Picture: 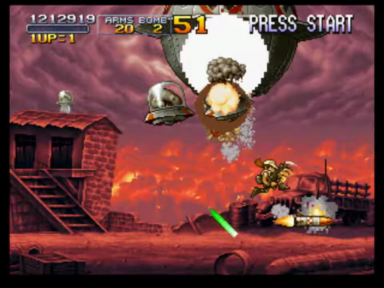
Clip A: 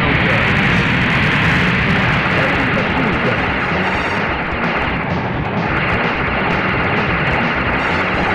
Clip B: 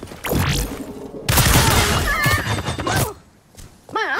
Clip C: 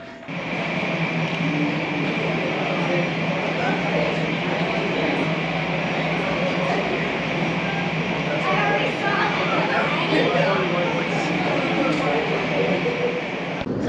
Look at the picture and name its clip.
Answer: A